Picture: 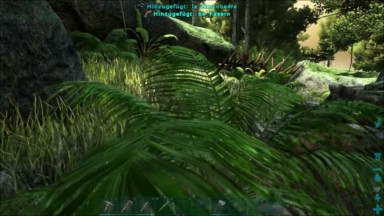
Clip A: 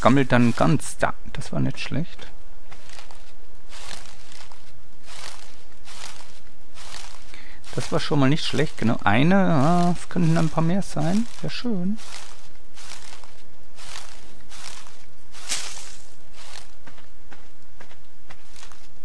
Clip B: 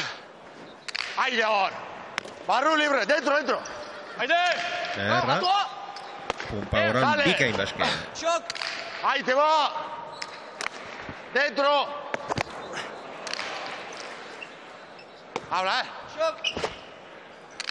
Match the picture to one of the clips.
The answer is A